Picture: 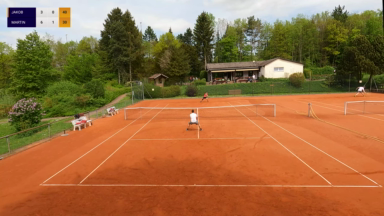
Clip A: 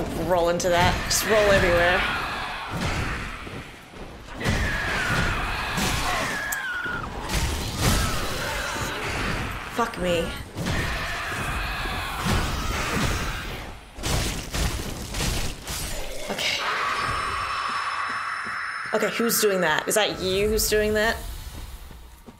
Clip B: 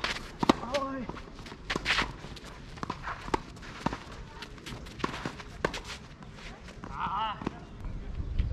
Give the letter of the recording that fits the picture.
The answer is B